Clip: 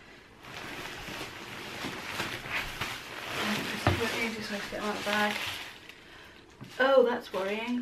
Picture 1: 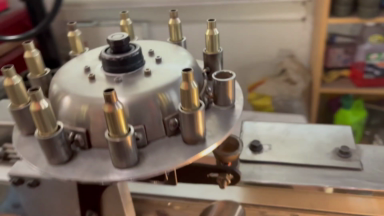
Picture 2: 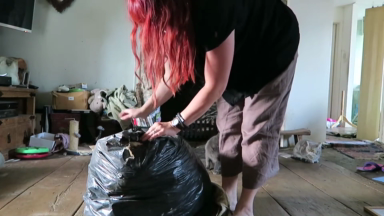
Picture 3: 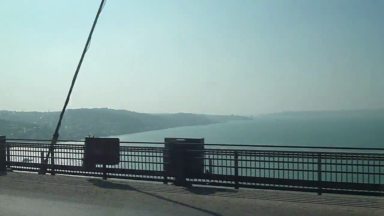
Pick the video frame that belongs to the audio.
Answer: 2